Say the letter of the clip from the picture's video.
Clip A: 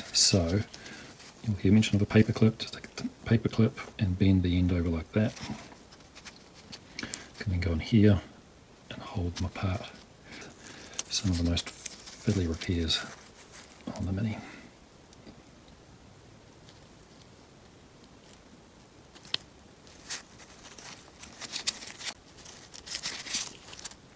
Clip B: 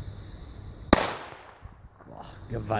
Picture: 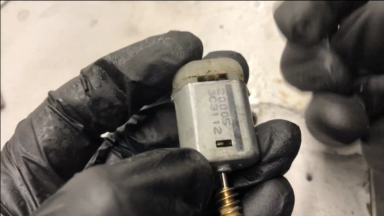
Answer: A